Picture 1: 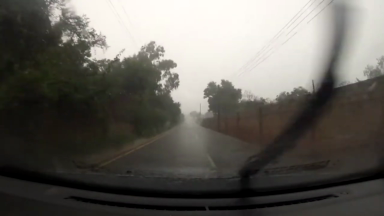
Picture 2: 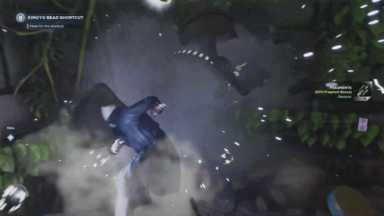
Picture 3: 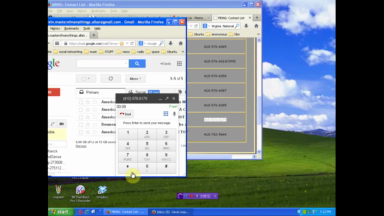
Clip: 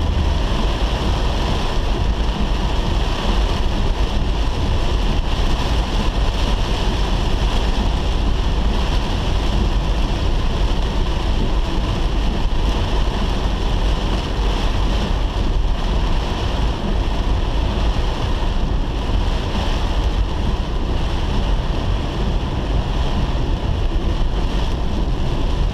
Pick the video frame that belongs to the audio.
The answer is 1